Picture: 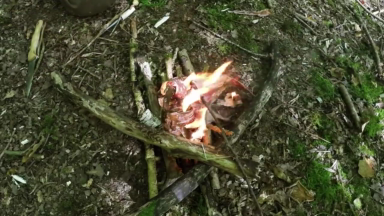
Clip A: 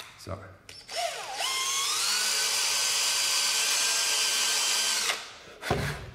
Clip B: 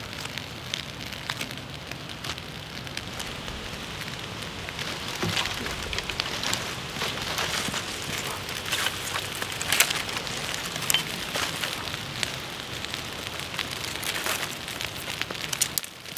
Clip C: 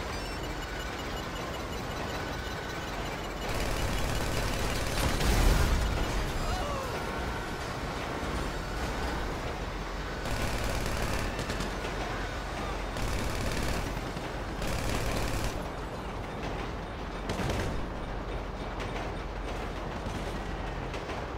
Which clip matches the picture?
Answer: B